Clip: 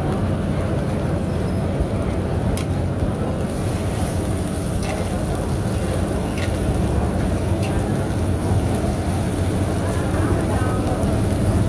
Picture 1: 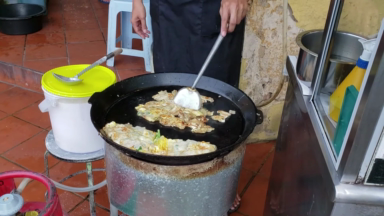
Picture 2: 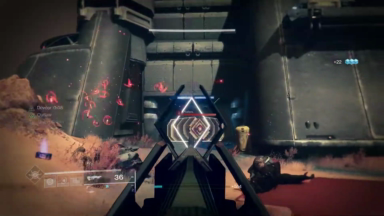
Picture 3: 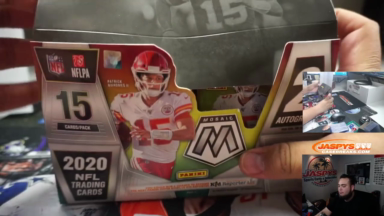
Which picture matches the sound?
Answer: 1